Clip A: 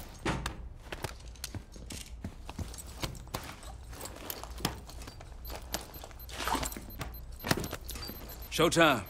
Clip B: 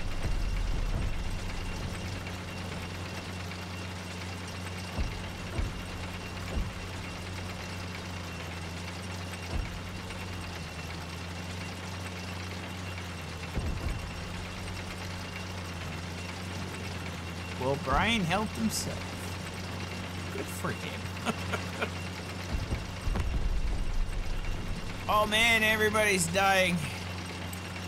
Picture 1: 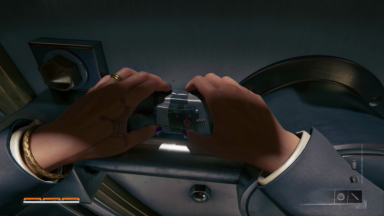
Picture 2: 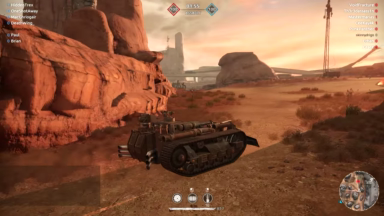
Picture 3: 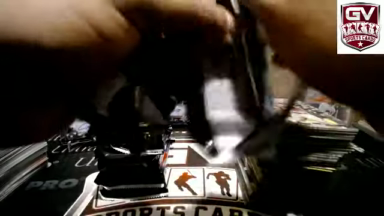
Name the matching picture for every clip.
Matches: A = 1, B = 2